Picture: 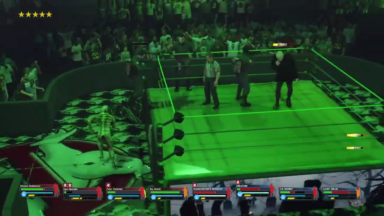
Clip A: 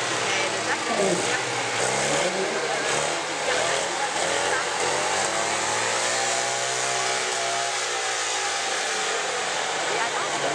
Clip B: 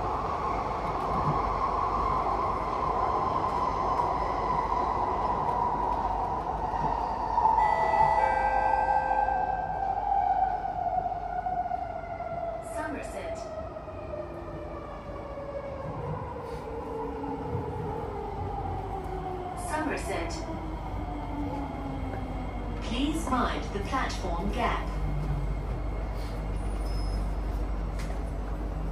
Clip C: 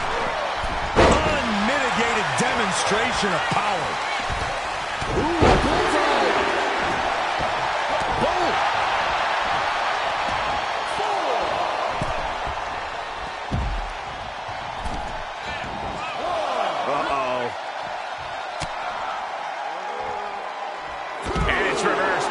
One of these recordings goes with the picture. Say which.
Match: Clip C